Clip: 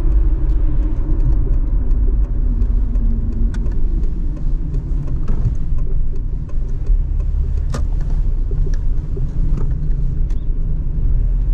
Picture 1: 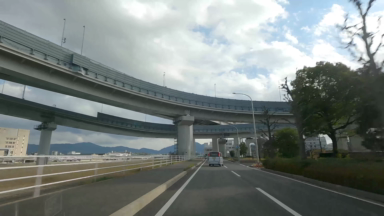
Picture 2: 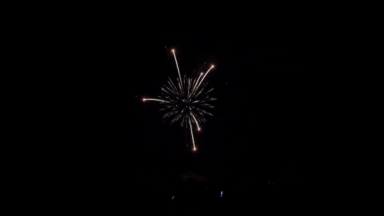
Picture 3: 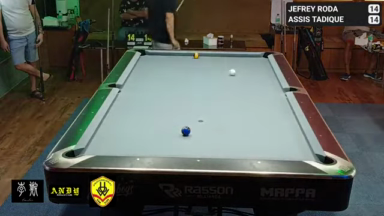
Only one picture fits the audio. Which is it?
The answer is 1